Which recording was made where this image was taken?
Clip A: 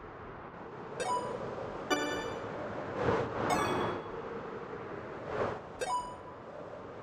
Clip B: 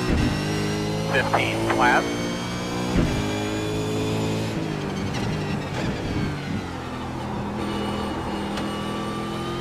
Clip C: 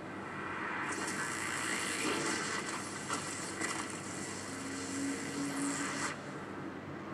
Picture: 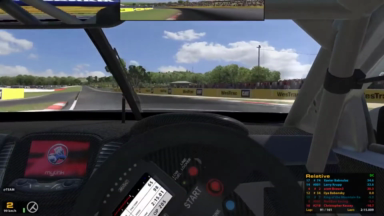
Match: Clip B